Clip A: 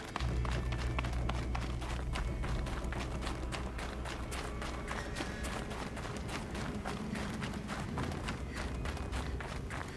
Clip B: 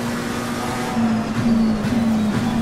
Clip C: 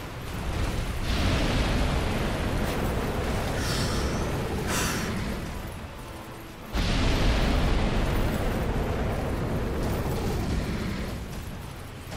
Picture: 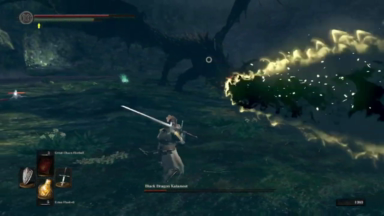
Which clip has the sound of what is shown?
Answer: C